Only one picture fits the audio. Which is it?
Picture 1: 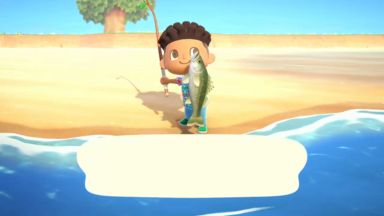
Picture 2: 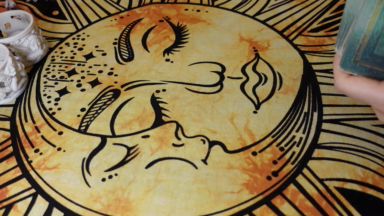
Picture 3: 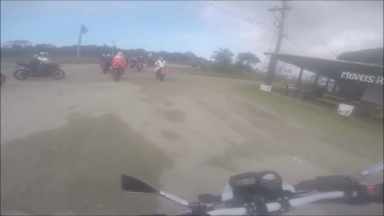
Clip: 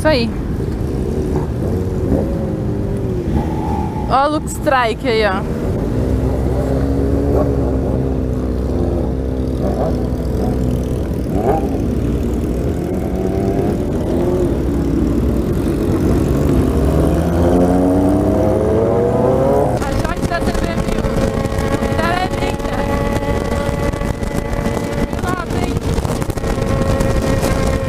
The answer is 3